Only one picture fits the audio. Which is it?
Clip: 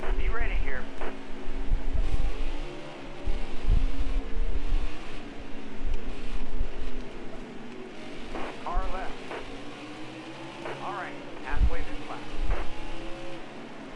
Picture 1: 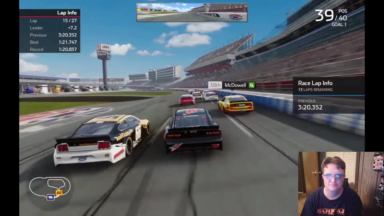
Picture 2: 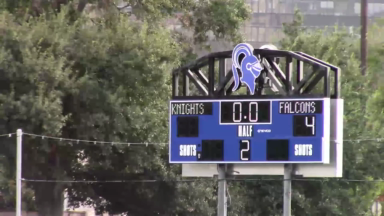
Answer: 1